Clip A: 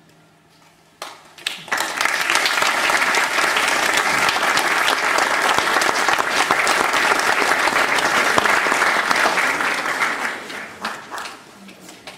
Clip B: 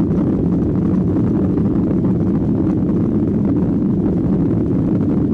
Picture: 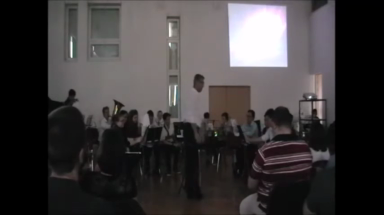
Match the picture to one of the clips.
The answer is A